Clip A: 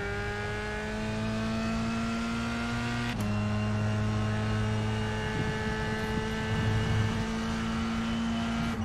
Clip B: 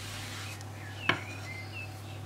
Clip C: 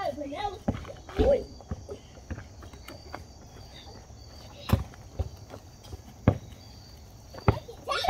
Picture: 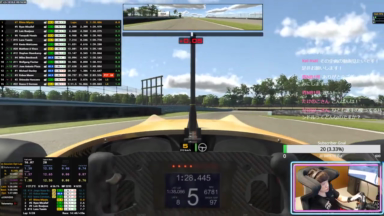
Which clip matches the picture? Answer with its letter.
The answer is A